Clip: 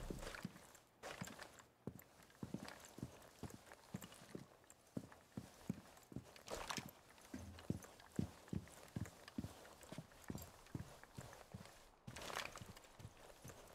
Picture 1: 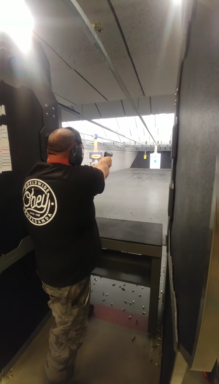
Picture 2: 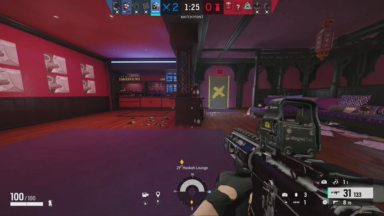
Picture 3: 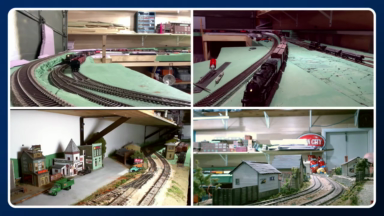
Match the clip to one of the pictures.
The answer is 2